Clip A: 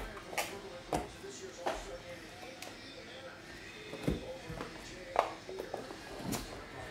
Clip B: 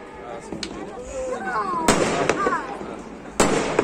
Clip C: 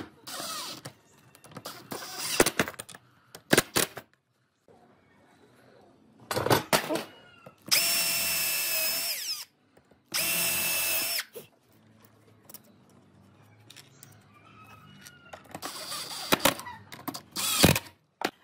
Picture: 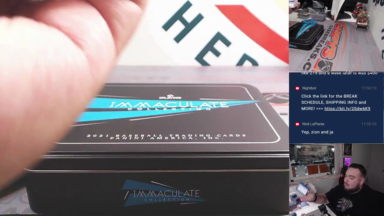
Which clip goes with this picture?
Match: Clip A